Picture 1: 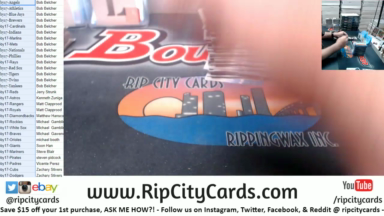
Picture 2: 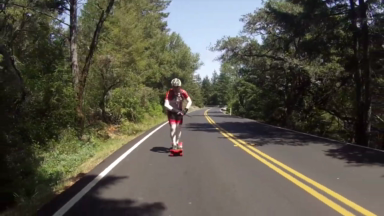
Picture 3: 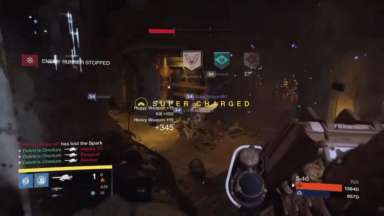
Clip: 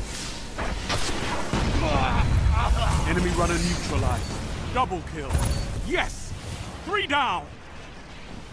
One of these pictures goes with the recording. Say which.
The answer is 3